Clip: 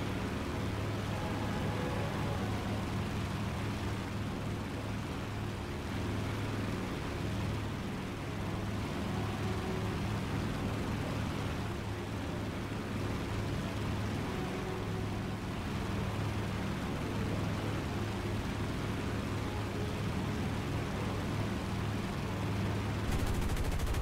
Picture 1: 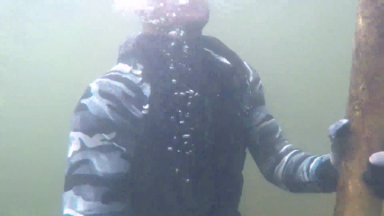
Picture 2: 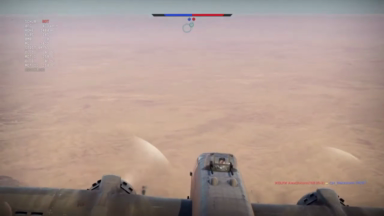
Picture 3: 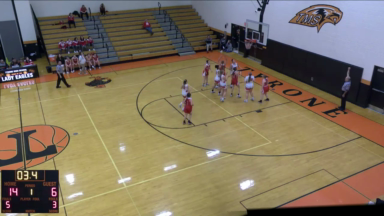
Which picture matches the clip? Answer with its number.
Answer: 2